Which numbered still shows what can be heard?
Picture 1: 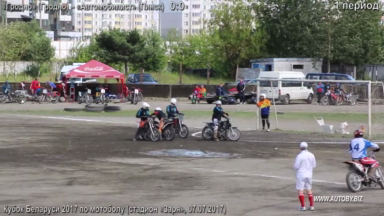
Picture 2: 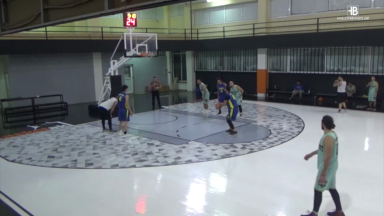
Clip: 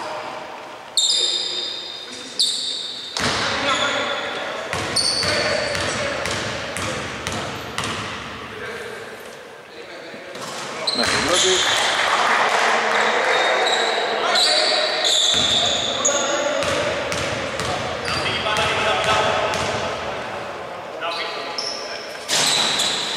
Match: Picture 2